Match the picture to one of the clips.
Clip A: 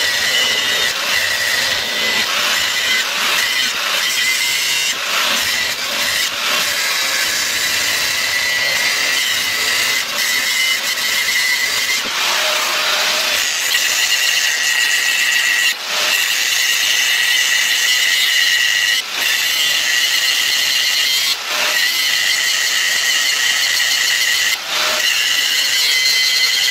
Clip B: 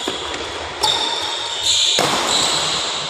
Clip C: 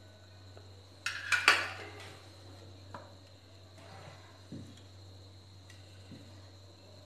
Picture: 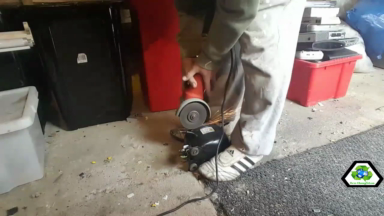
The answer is A